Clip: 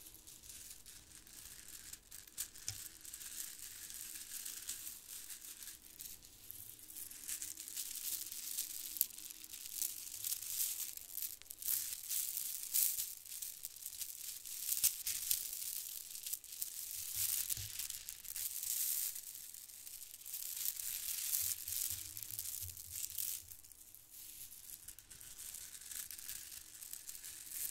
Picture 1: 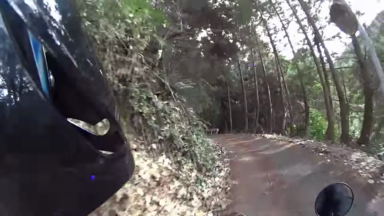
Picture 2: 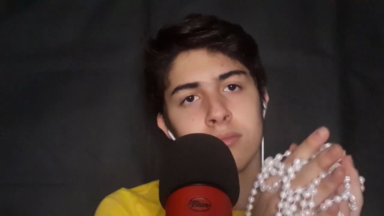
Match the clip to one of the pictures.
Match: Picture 2